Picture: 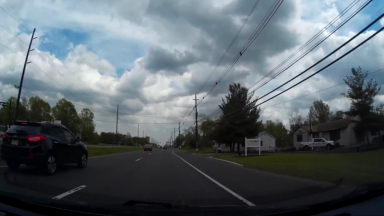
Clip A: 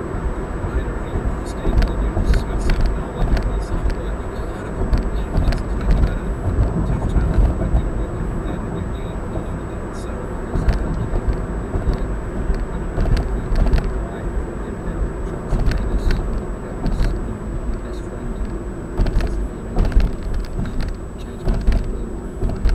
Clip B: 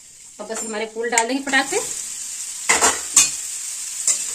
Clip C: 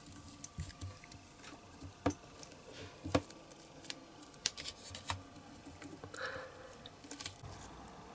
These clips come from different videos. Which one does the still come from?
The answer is A